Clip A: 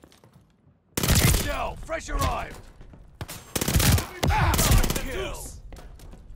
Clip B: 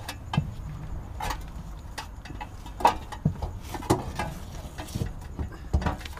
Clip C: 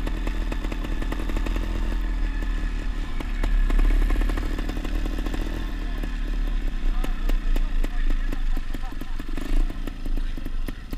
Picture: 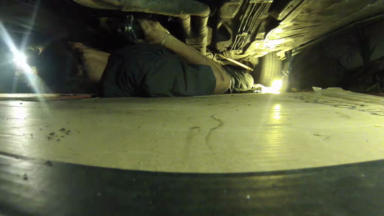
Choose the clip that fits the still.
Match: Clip B